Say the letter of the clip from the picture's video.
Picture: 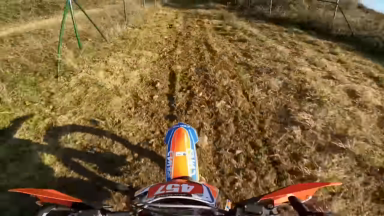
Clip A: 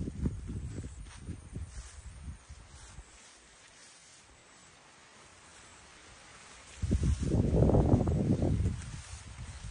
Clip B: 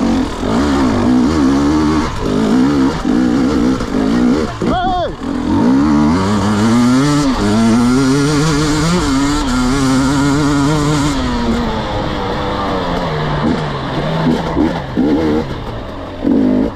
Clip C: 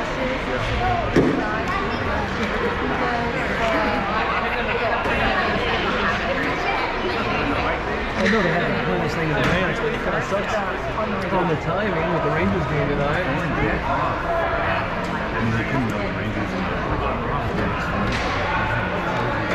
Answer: B